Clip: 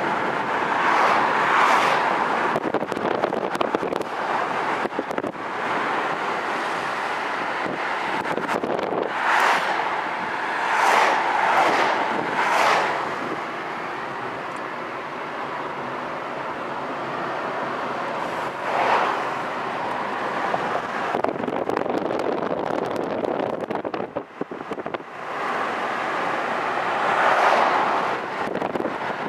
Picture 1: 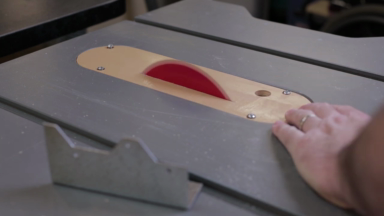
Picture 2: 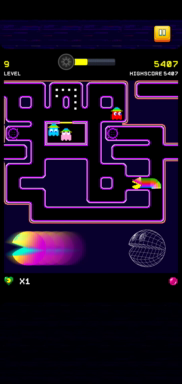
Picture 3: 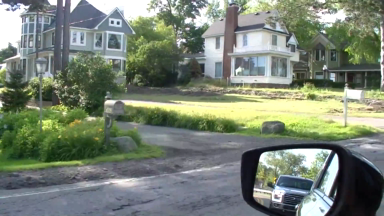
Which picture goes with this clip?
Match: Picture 3